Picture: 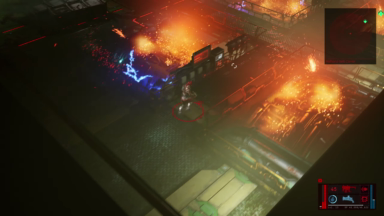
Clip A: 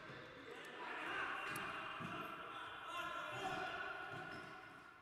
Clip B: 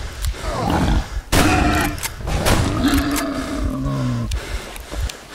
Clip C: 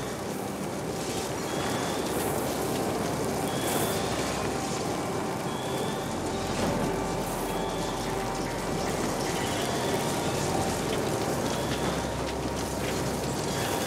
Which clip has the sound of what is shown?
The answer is C